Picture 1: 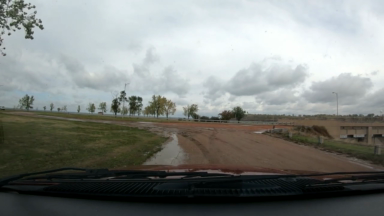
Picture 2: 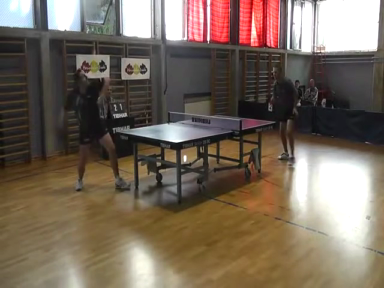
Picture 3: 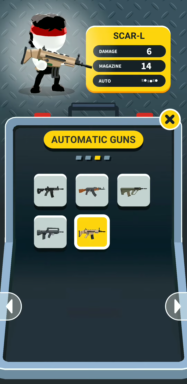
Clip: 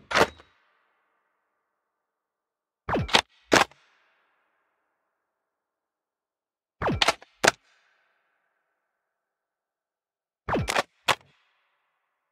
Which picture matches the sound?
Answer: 3